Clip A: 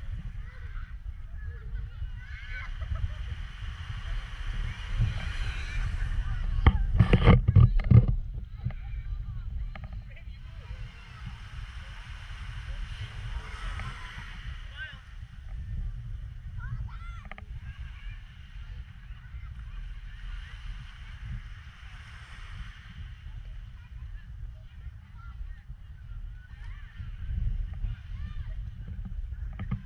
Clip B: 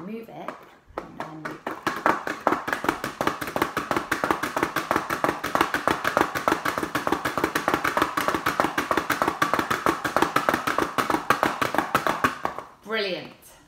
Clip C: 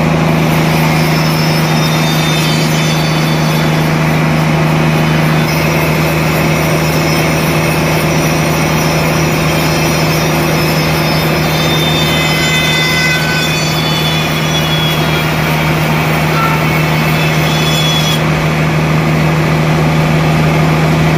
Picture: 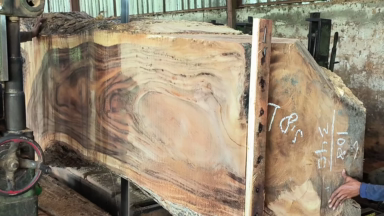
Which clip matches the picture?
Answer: C